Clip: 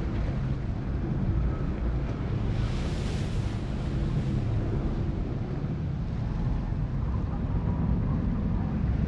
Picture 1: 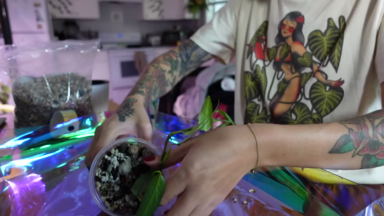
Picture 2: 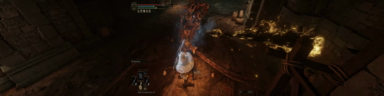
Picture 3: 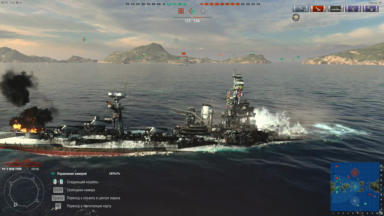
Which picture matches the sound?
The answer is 3